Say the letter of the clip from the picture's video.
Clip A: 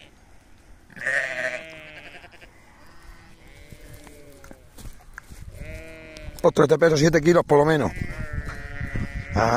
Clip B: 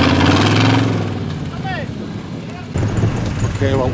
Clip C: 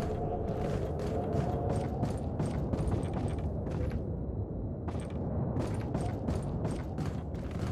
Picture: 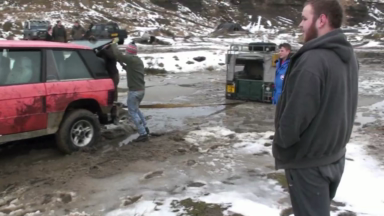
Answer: B